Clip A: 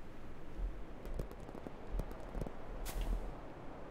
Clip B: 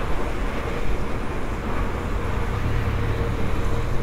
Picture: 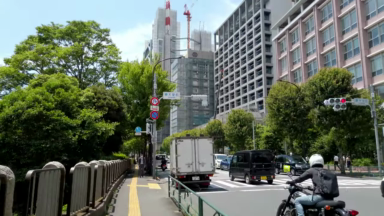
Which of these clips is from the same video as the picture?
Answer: B